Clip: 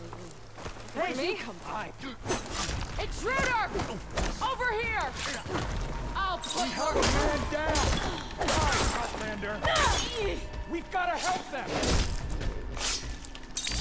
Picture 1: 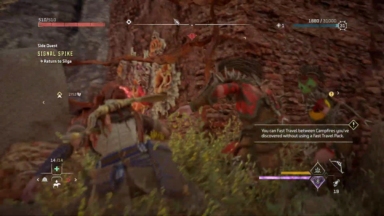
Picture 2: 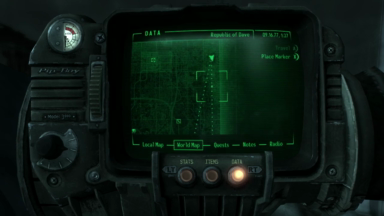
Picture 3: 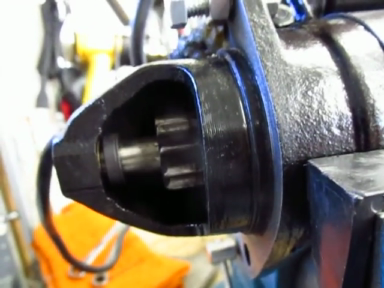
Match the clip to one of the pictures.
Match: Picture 1